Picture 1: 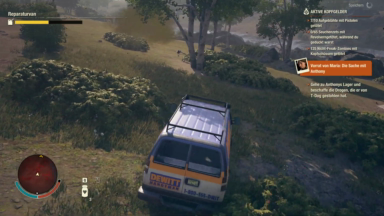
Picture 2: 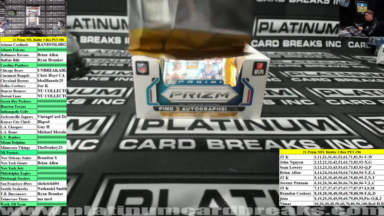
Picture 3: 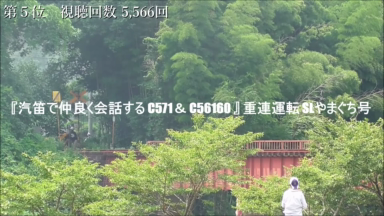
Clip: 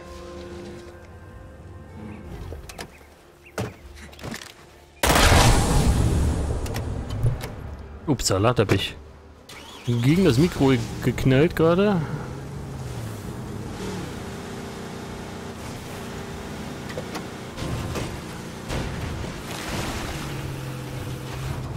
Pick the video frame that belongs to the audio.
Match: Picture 1